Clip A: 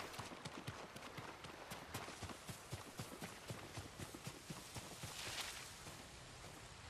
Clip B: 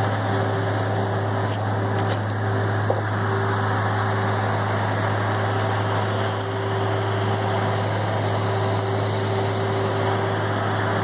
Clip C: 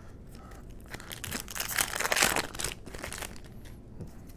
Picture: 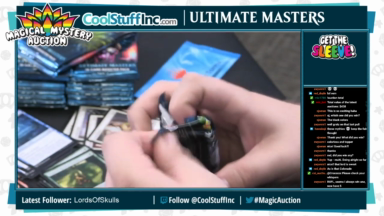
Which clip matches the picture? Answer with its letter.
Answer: C